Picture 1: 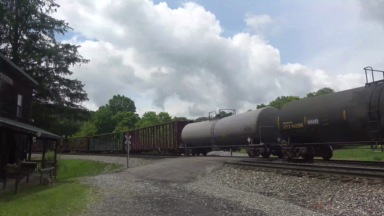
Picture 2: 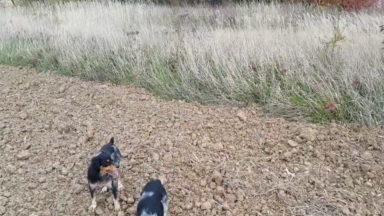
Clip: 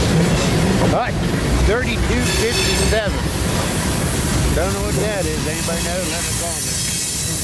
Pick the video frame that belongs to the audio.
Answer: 1